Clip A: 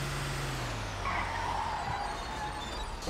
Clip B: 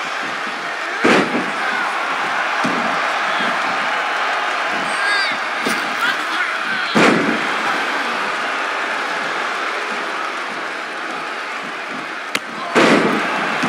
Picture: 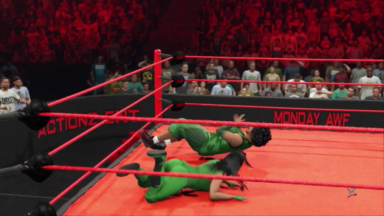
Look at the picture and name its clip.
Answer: B